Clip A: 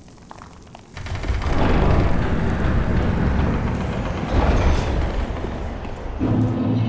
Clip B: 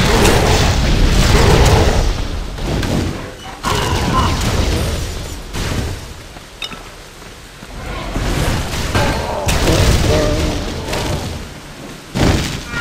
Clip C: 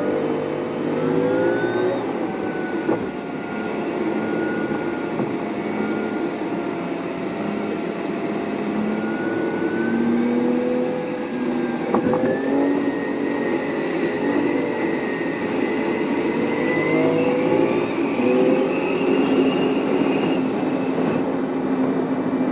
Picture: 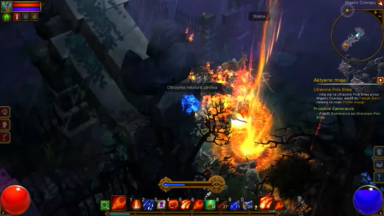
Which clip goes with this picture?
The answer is B